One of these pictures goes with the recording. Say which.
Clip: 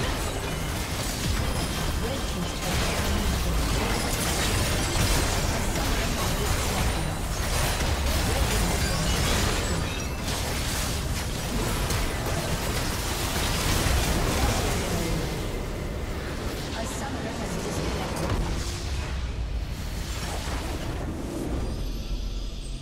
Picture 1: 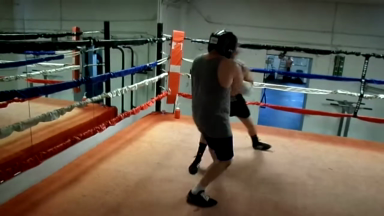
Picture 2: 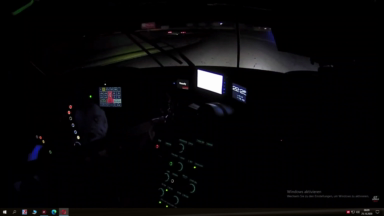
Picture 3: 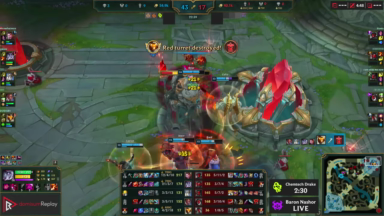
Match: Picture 3